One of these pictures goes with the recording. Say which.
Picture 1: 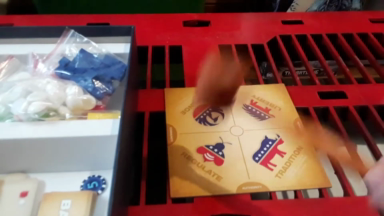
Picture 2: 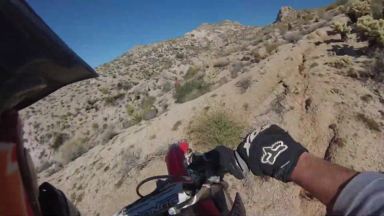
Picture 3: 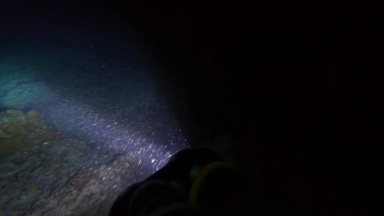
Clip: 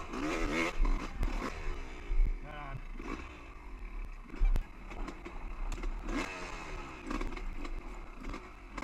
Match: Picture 2